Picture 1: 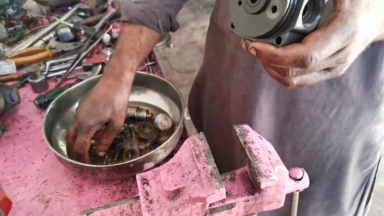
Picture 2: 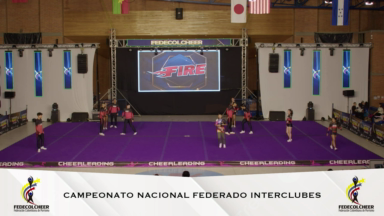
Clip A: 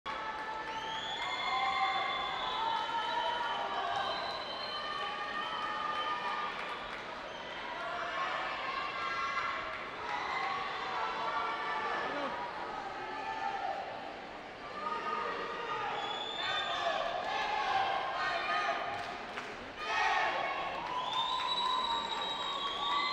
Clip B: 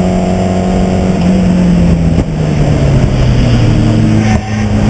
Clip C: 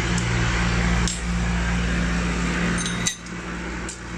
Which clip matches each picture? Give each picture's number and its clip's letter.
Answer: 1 C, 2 A